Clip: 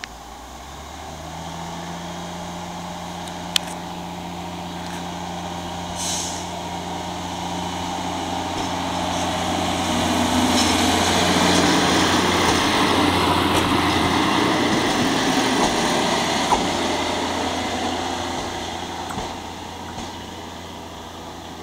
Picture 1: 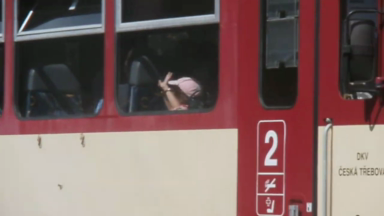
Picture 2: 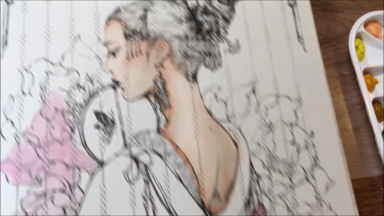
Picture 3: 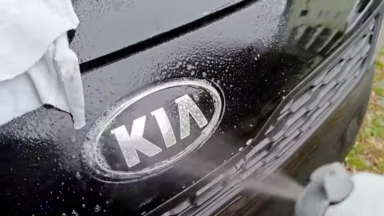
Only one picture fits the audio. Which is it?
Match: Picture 1